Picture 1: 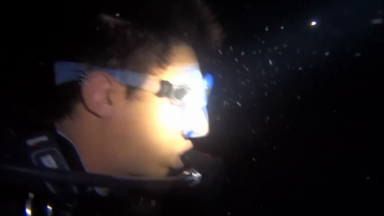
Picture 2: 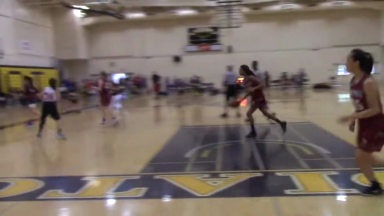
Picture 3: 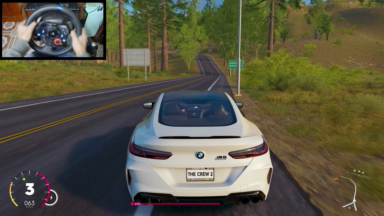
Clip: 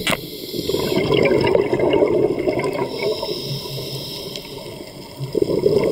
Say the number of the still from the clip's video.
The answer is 1